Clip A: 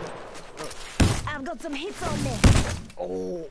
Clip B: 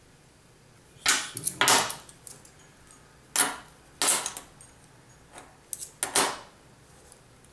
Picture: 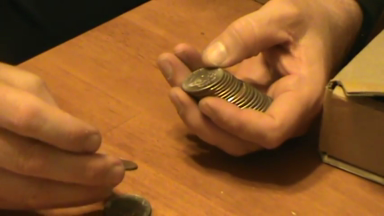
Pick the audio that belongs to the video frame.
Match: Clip B